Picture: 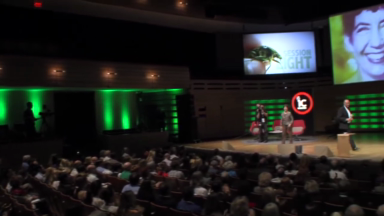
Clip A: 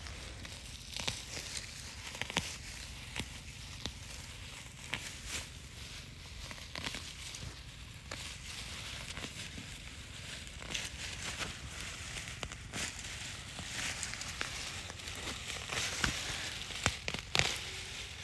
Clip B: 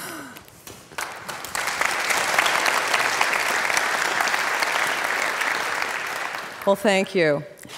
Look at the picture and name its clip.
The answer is B